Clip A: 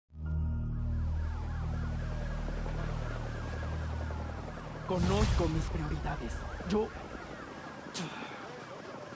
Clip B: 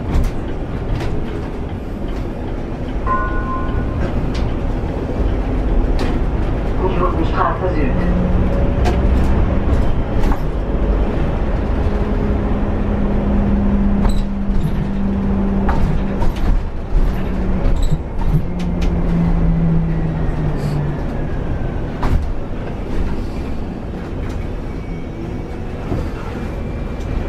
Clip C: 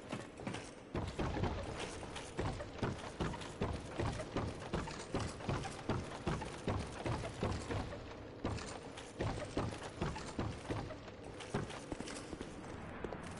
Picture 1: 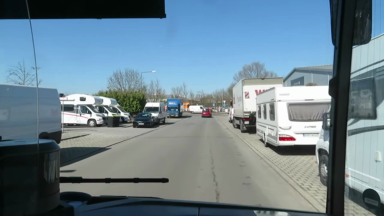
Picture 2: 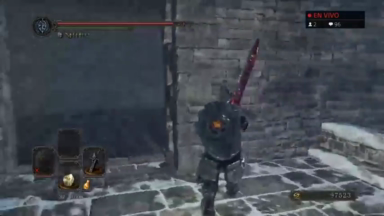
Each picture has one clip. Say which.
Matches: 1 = B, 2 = C